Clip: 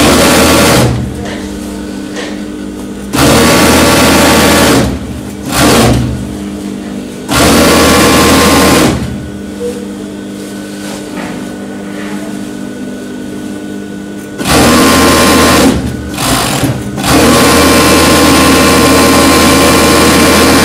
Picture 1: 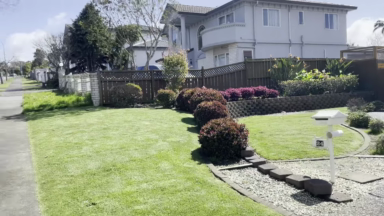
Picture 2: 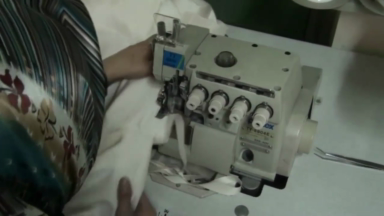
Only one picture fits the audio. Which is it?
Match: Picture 2